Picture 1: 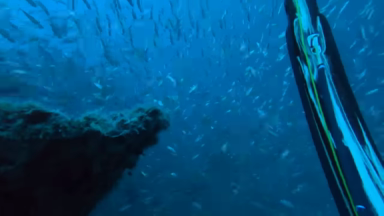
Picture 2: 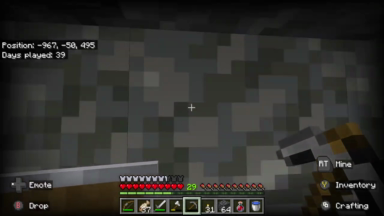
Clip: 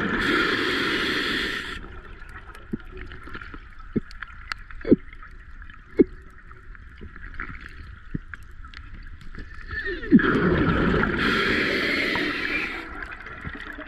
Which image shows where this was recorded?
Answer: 1